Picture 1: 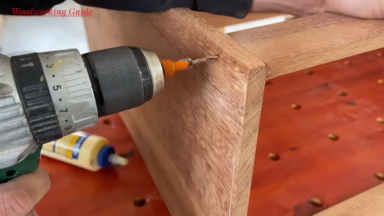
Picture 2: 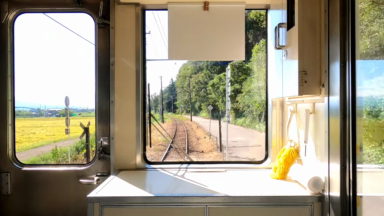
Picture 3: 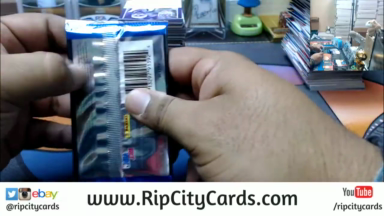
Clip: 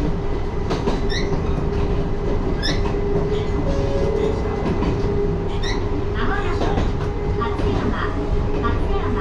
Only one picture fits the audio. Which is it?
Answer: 2